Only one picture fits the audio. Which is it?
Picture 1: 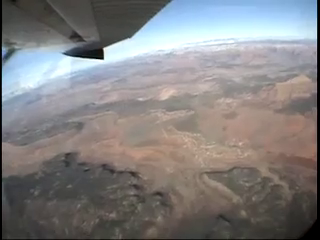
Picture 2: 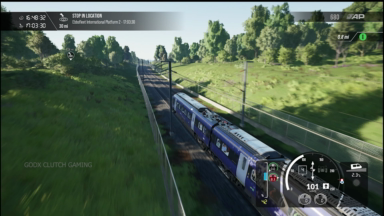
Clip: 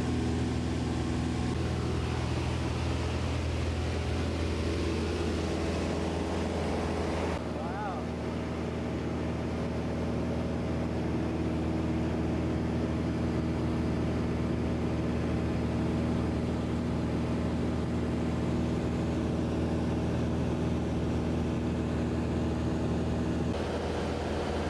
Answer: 1